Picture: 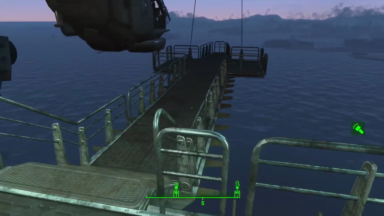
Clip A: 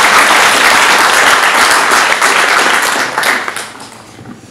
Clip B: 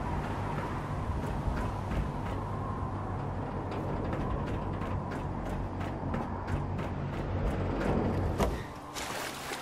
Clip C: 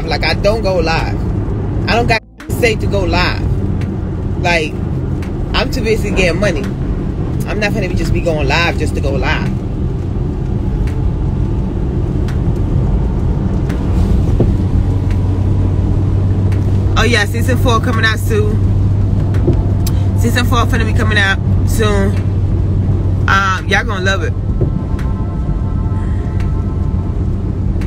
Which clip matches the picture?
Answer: B